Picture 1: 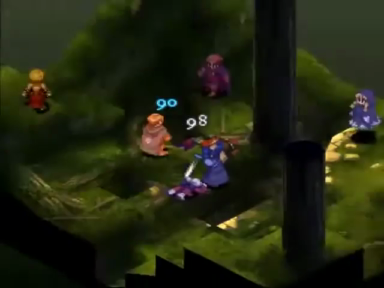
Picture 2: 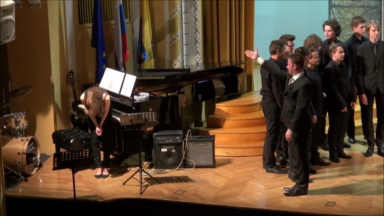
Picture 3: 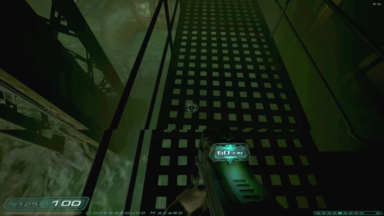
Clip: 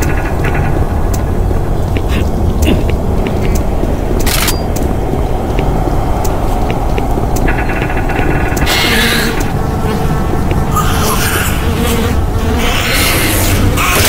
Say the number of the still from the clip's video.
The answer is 3